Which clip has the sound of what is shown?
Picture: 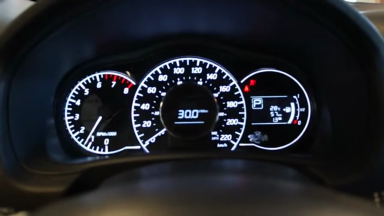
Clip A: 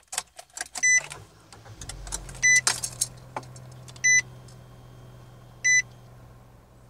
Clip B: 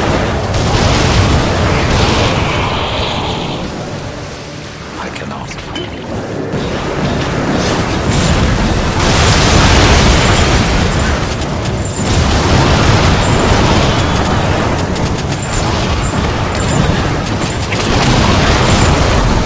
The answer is A